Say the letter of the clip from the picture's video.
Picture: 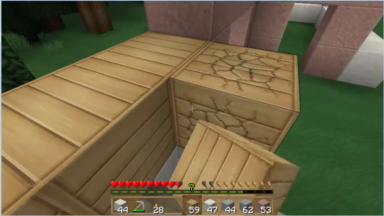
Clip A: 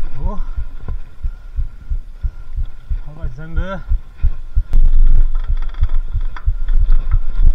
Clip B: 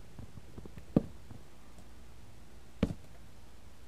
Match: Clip B